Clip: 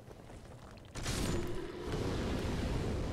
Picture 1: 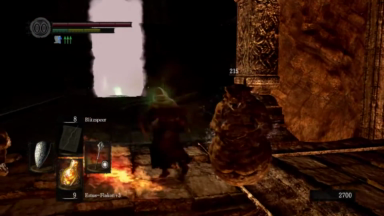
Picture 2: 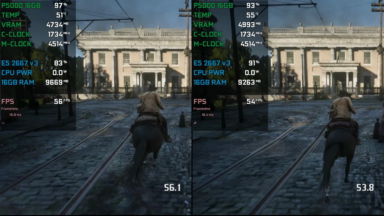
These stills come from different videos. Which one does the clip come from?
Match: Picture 1